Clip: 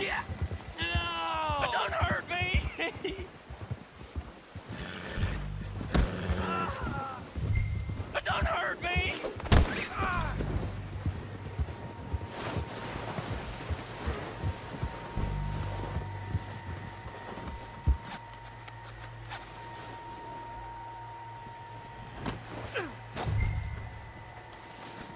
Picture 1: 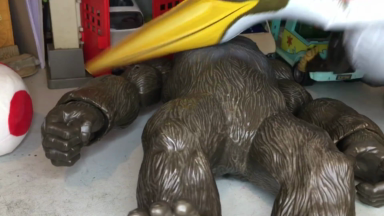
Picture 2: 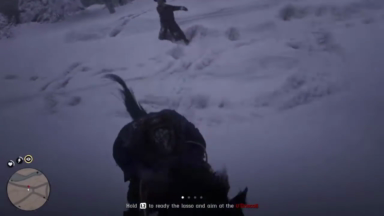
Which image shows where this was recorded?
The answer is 2